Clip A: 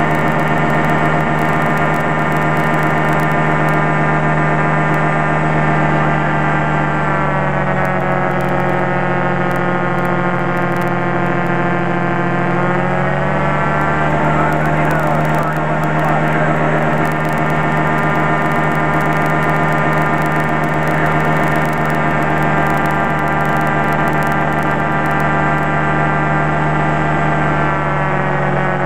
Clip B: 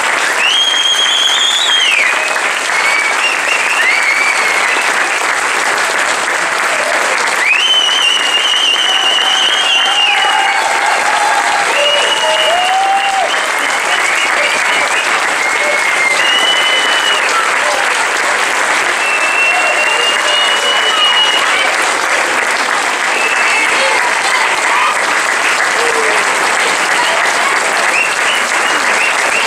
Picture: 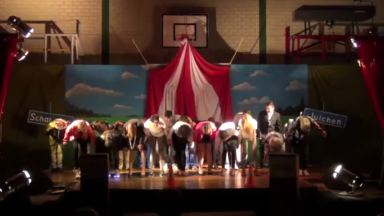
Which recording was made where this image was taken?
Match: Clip B